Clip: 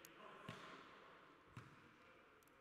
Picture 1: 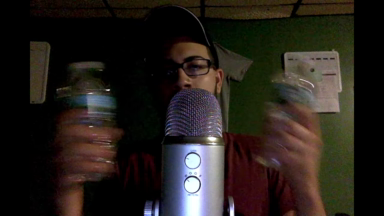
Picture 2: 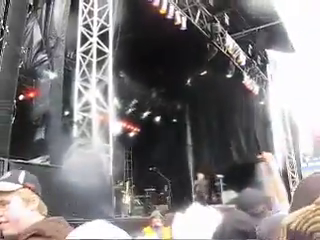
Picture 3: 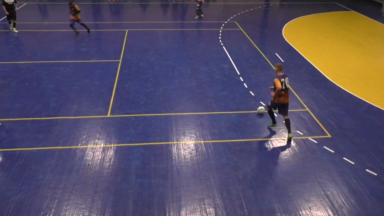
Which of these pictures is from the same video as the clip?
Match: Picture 3